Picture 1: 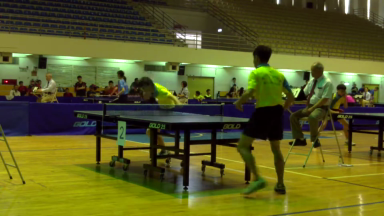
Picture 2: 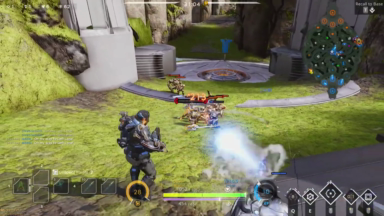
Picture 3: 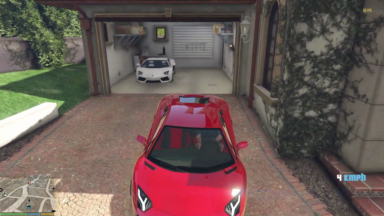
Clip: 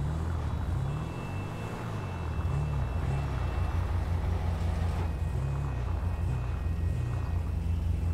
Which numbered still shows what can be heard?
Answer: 3